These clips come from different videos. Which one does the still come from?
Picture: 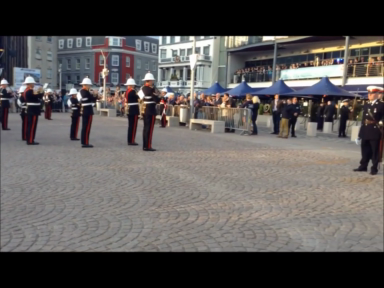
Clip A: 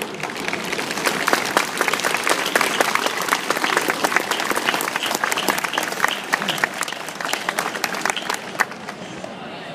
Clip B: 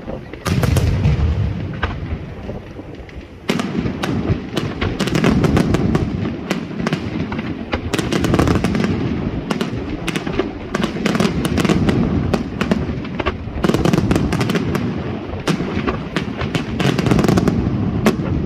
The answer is A